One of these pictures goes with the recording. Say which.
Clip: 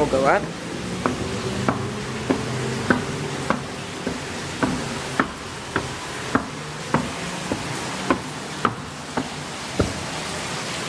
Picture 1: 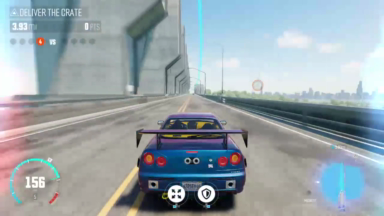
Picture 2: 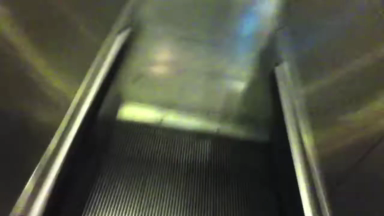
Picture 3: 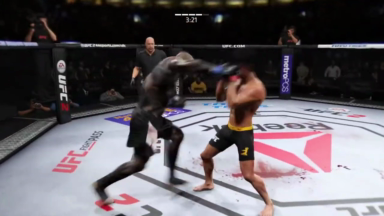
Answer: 2